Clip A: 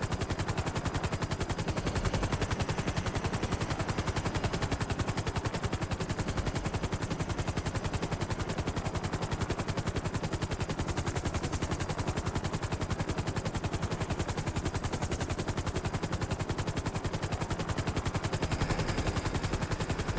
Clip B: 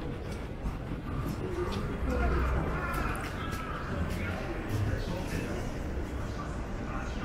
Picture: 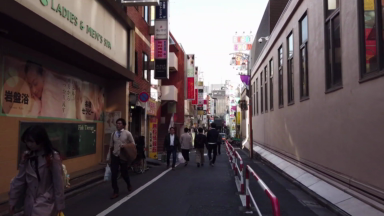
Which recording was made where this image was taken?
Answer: B